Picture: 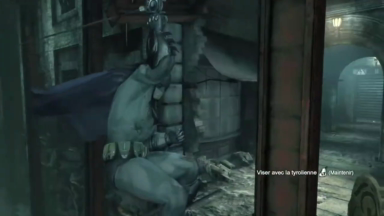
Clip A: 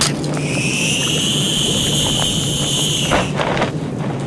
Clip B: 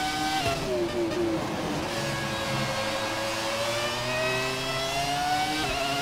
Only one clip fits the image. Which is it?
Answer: A